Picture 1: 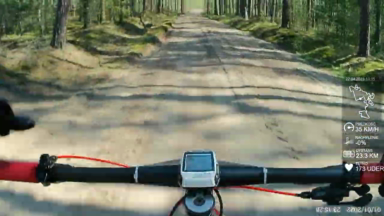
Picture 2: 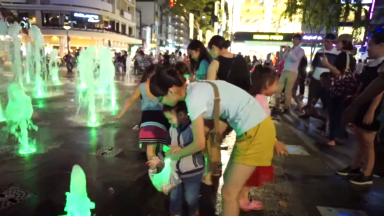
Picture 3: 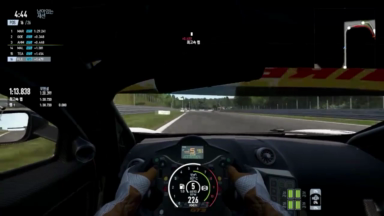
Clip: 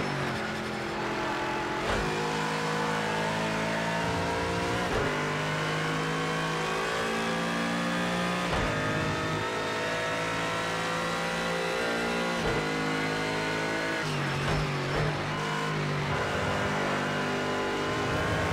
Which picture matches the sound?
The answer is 3